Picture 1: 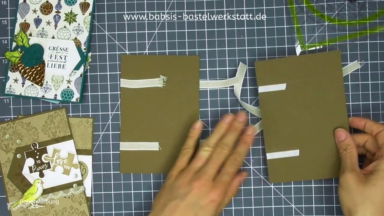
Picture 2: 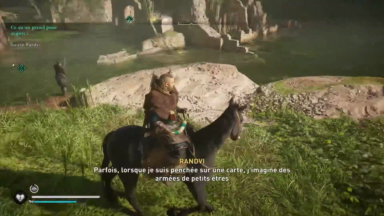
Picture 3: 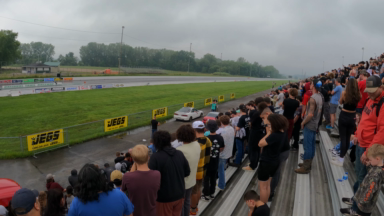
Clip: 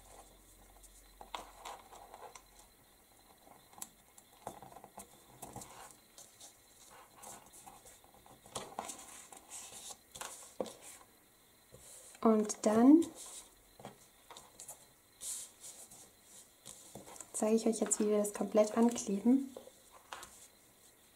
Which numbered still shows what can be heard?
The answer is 1